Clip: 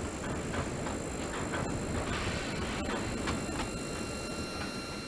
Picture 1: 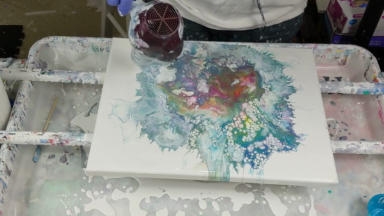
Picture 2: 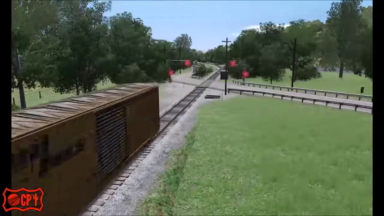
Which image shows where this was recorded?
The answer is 2